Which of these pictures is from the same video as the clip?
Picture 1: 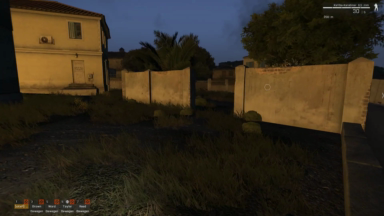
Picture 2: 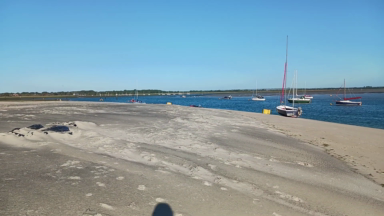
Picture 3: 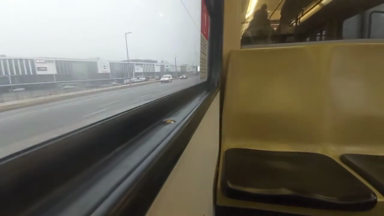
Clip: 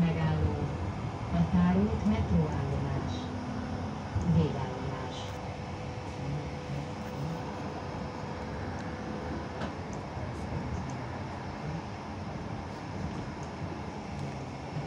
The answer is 3